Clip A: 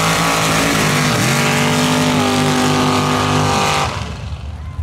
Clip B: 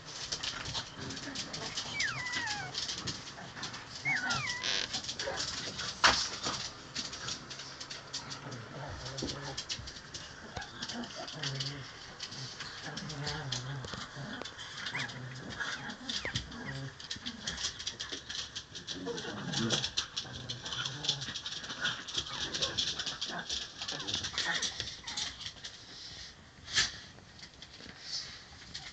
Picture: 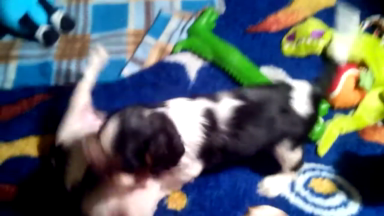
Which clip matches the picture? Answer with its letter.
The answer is B